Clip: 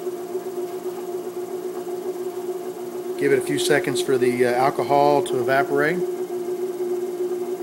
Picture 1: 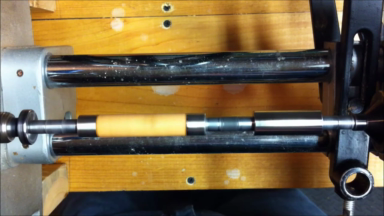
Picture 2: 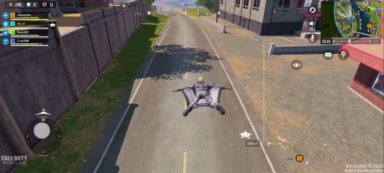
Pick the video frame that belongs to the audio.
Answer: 1